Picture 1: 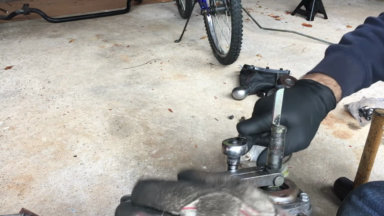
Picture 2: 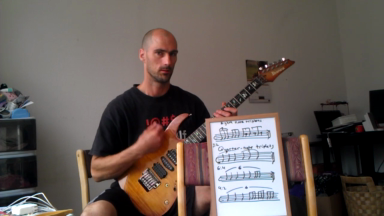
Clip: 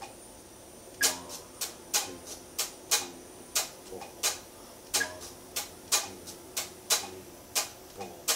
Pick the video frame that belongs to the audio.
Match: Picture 2